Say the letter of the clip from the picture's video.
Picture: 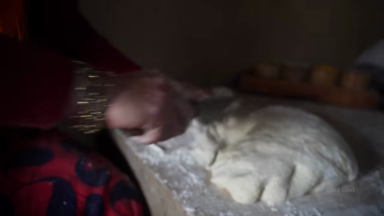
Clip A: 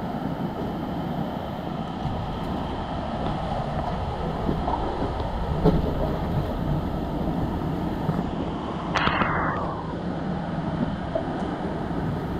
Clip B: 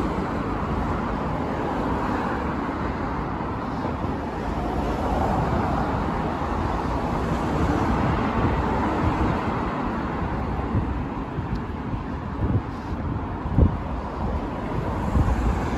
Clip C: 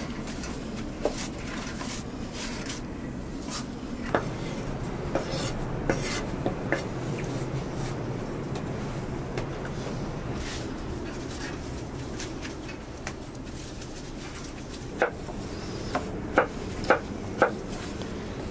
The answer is C